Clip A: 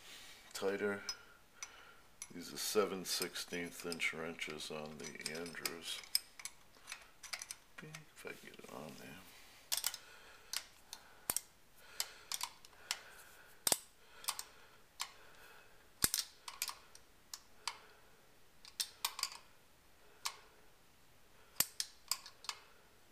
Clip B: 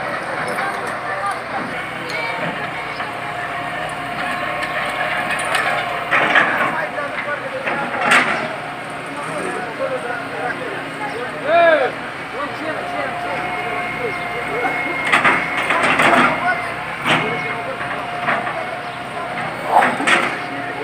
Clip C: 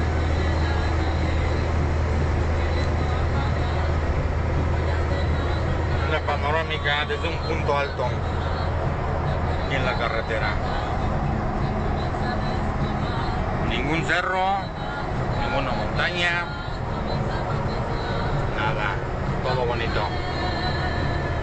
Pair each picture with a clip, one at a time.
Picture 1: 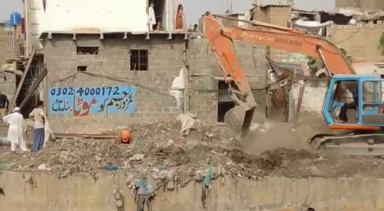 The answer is B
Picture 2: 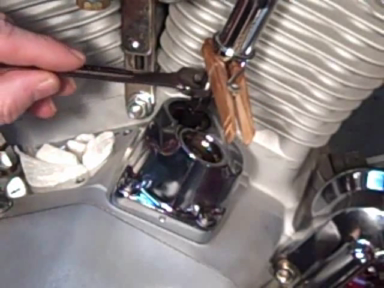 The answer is A